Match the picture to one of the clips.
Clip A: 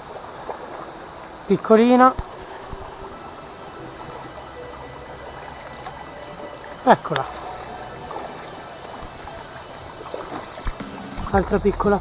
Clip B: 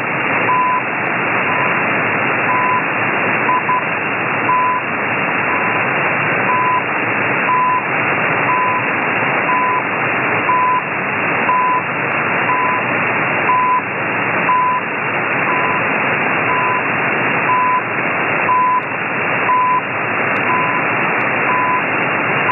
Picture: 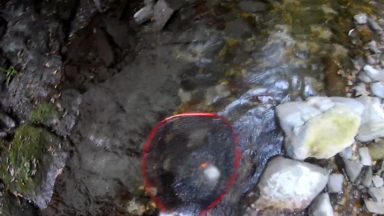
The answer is A